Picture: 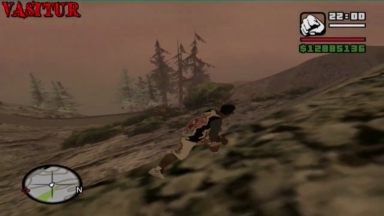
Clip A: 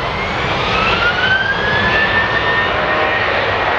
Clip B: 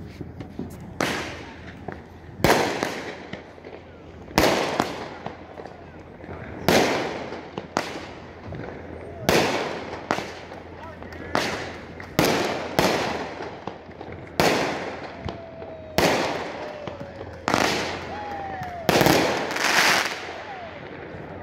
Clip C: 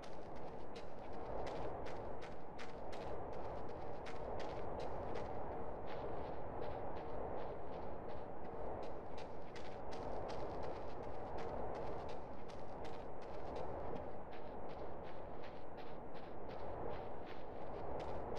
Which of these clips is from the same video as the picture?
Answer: C